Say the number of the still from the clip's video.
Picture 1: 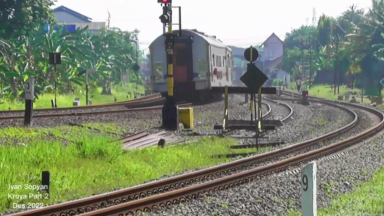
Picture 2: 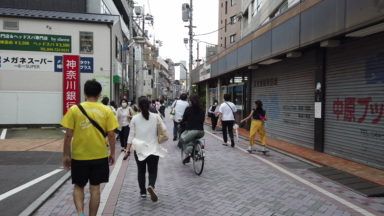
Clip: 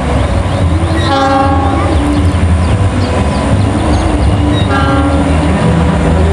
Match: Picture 1